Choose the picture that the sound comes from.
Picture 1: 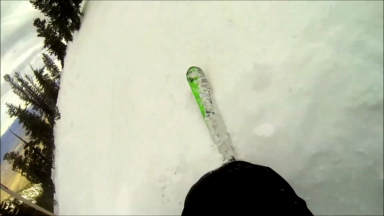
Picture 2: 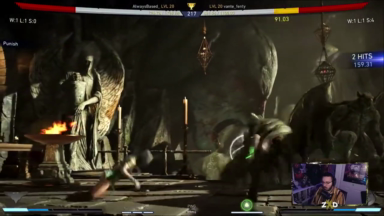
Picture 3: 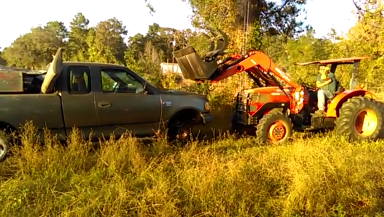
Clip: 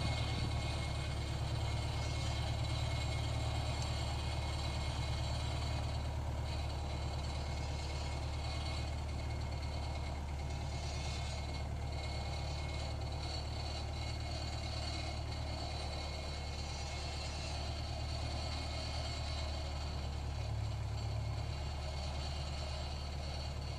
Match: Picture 3